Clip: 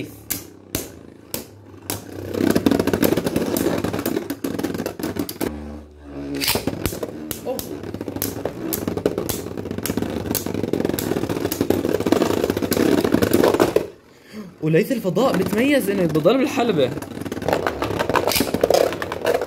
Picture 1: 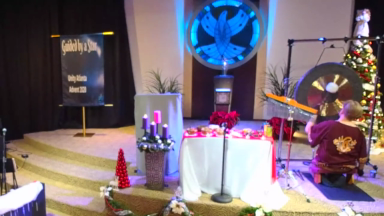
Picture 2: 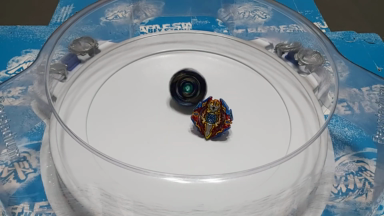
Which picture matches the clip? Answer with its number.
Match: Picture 2